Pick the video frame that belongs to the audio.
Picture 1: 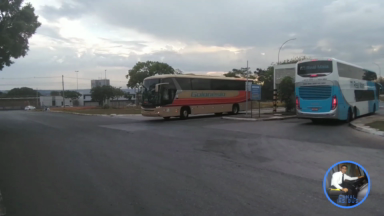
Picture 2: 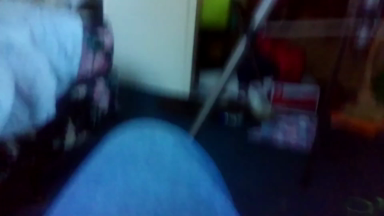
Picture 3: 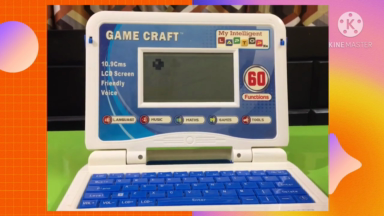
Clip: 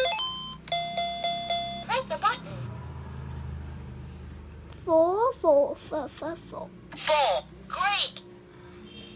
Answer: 3